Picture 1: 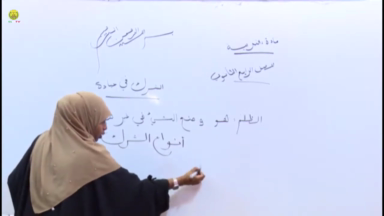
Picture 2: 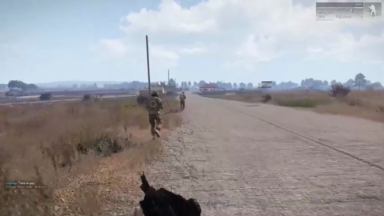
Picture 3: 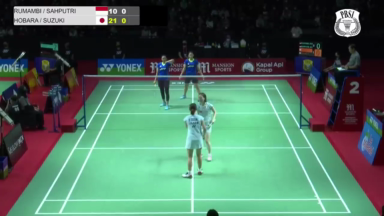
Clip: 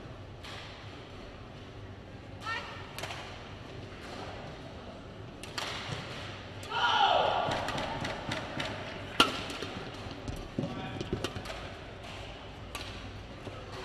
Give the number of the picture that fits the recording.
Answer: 3